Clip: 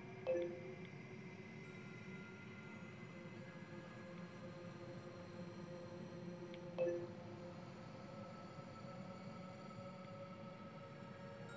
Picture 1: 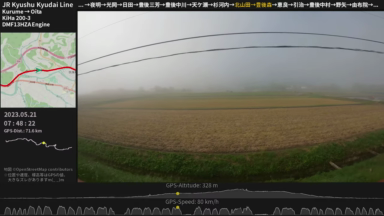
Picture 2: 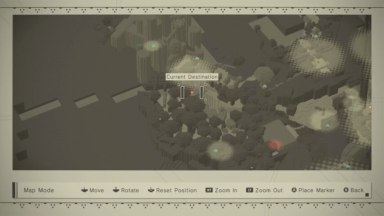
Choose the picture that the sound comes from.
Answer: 2